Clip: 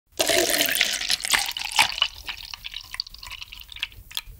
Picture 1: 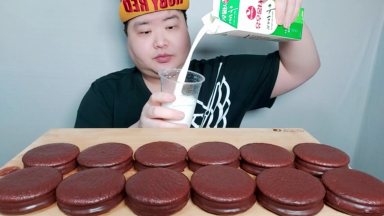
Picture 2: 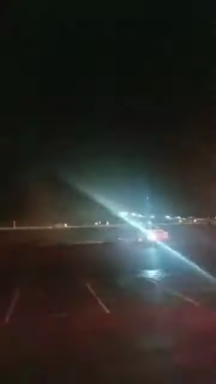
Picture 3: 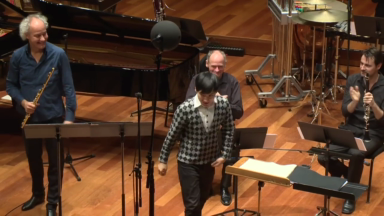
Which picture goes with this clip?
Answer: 1